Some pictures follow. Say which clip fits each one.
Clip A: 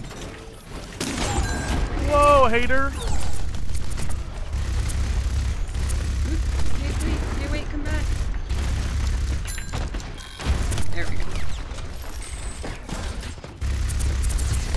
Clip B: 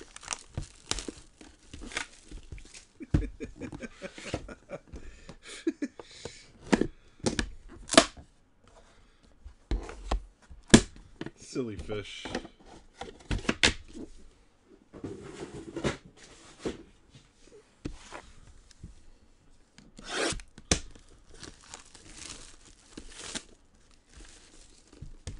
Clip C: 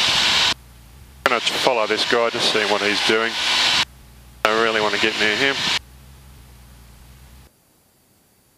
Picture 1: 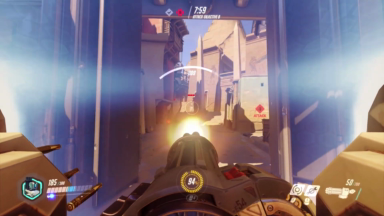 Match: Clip A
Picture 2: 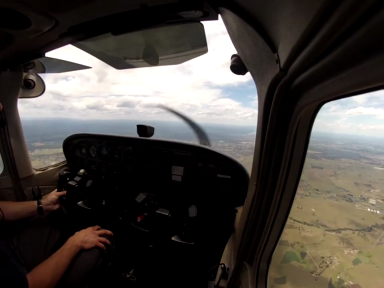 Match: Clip C